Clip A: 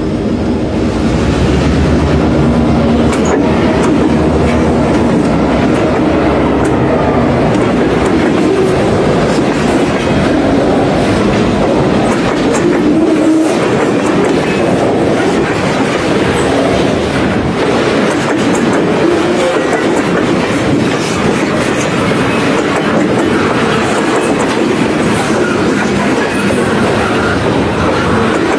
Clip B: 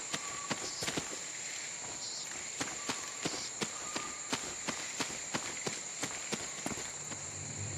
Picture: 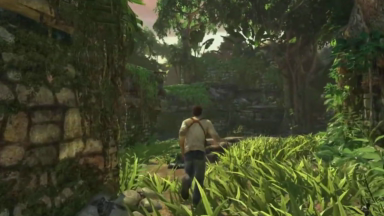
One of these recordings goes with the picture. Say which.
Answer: B